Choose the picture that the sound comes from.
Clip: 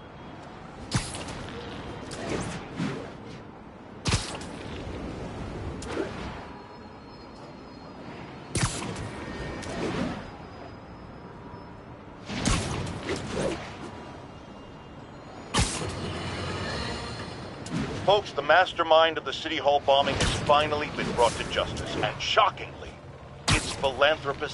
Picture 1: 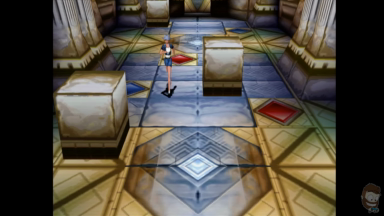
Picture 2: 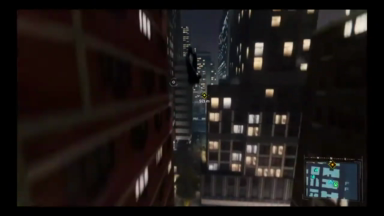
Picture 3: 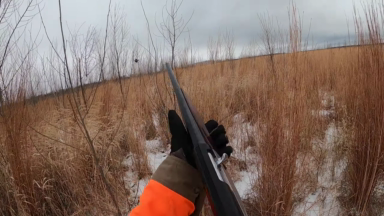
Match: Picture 2